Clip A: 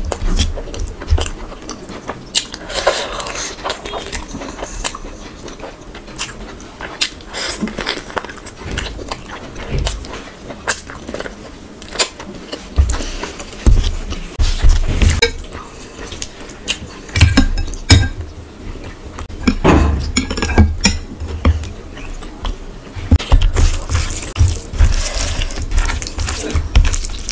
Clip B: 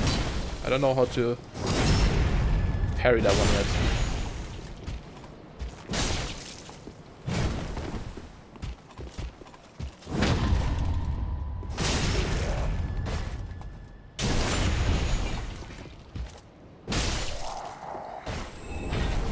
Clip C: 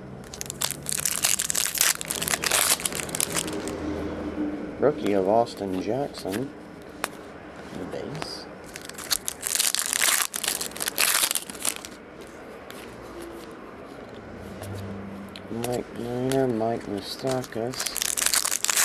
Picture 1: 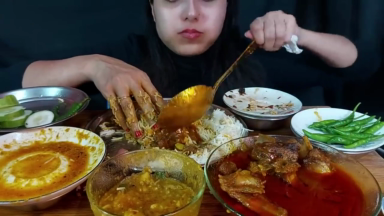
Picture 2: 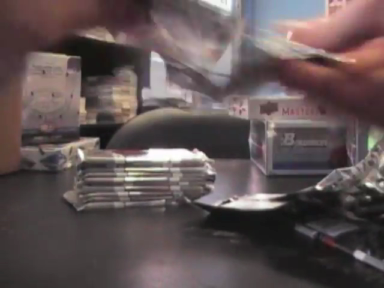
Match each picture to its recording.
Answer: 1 A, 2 C